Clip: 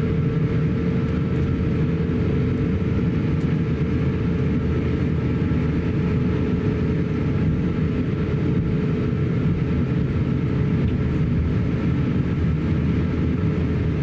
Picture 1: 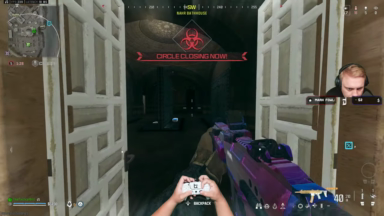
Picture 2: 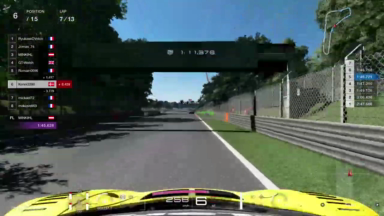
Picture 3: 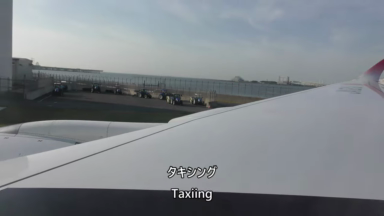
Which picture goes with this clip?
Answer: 3